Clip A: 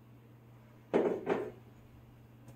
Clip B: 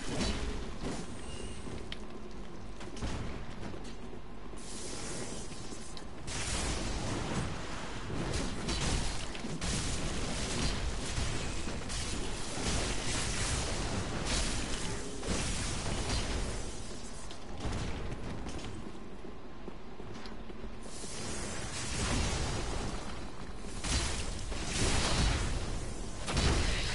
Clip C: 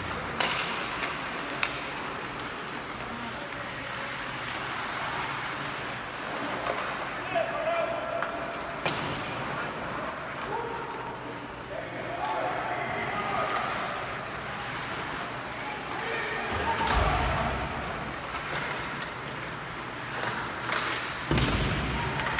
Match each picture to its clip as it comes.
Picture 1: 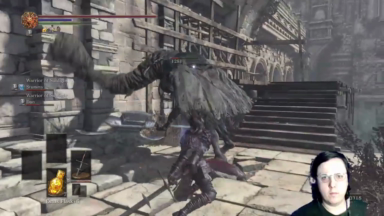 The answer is B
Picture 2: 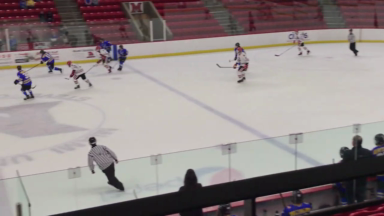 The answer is C